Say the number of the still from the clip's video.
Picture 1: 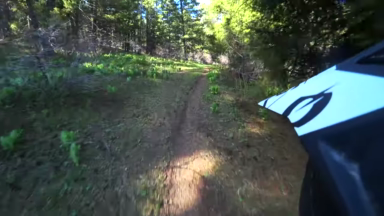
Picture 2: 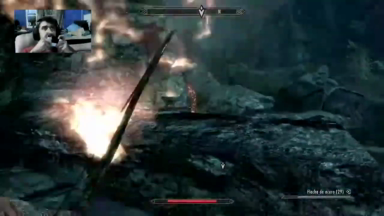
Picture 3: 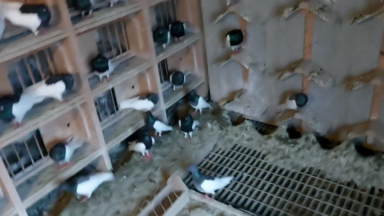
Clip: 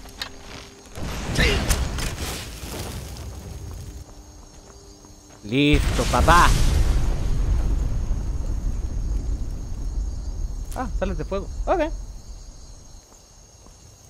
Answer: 2